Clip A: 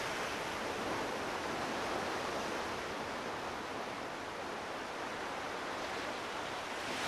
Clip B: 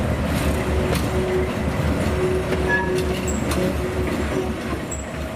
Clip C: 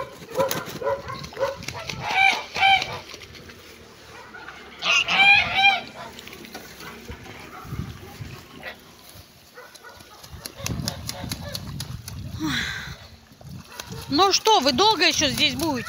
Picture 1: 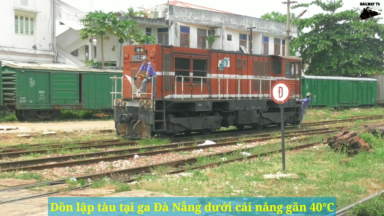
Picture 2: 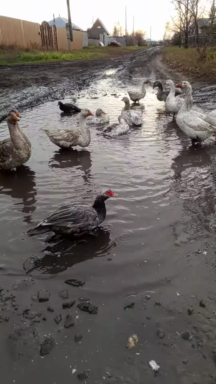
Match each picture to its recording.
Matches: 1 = B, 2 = C